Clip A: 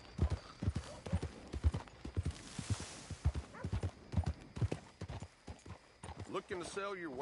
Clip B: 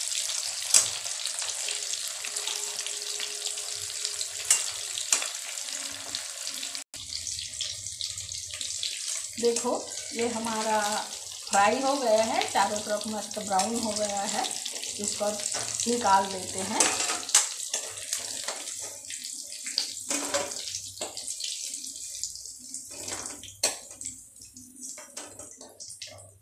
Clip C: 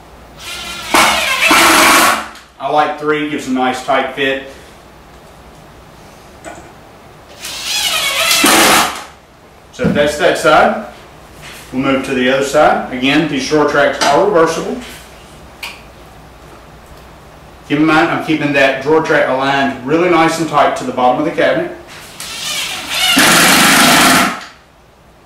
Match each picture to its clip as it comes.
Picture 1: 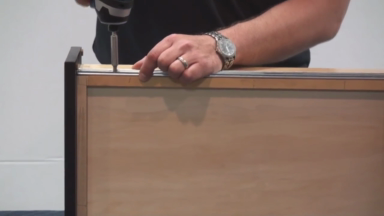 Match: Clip C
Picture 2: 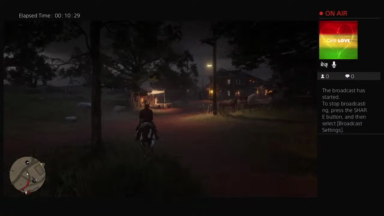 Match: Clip A